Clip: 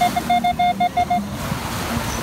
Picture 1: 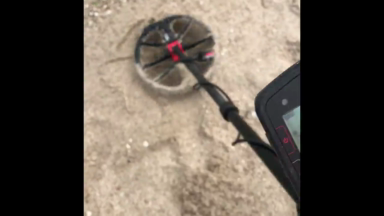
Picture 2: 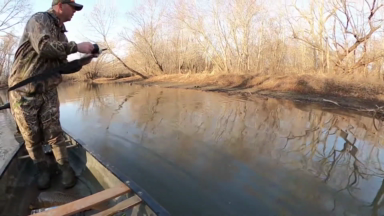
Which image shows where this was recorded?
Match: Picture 1